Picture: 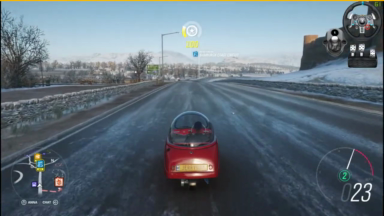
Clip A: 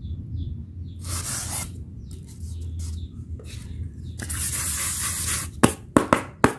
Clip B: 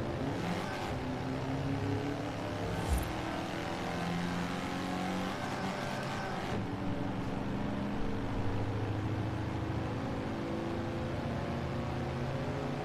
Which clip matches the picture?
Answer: B